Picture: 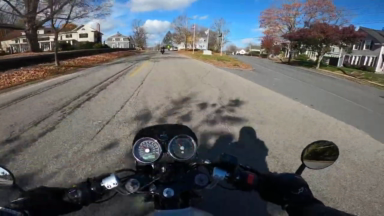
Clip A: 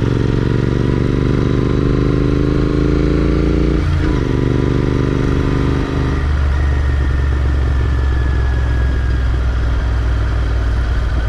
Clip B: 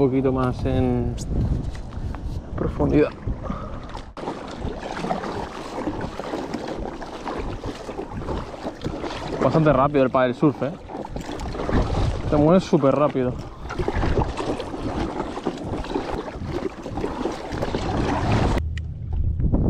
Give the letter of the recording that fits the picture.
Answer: A